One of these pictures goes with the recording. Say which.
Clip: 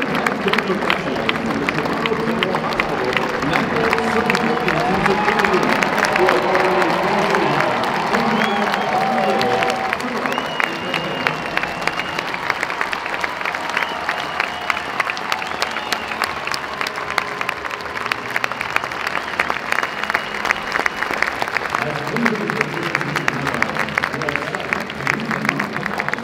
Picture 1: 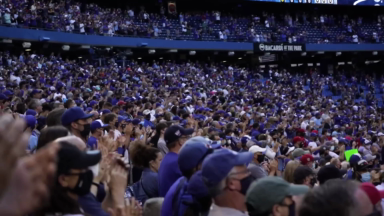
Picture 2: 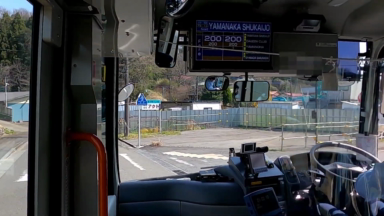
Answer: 1